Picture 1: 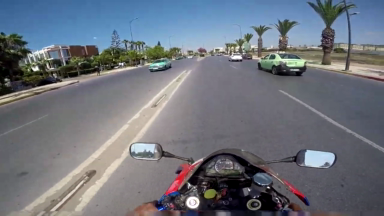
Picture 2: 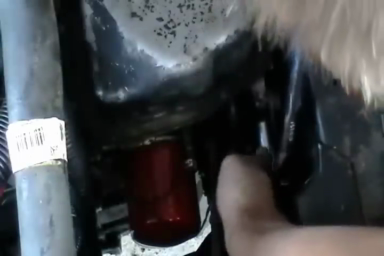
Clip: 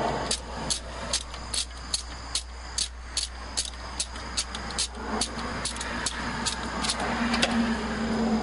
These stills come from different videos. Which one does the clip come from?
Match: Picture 2